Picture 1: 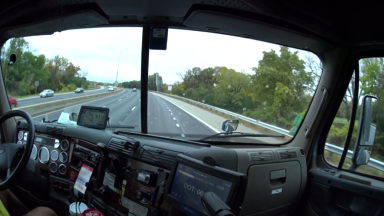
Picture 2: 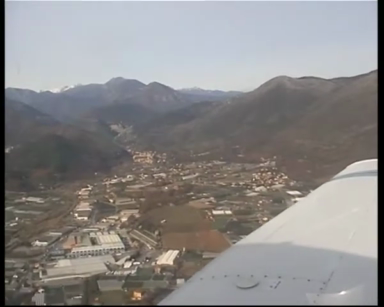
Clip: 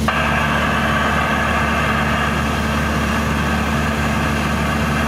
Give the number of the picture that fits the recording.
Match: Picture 2